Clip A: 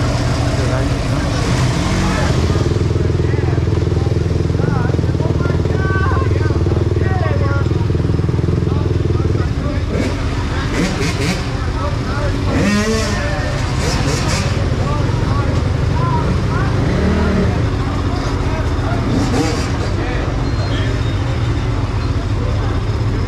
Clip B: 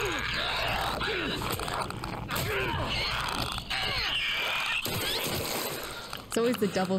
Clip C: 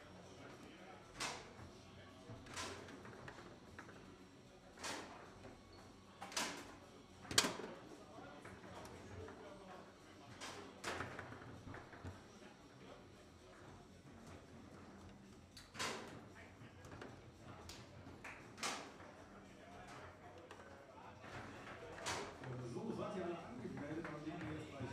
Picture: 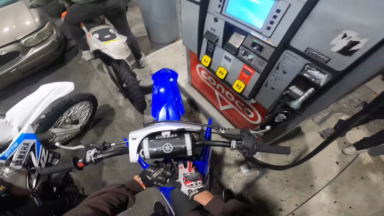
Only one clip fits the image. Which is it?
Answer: A